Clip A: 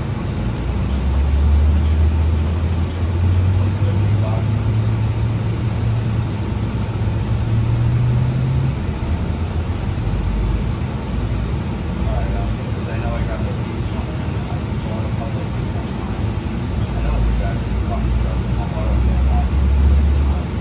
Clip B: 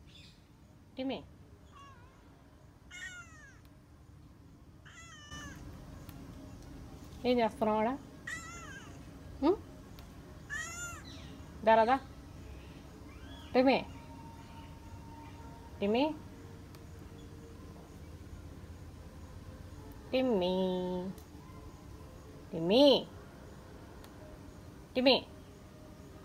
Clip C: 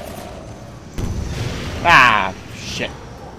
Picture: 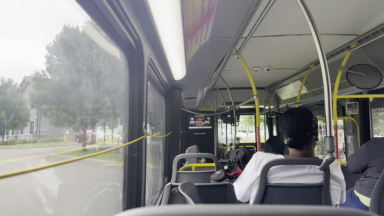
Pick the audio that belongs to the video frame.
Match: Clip A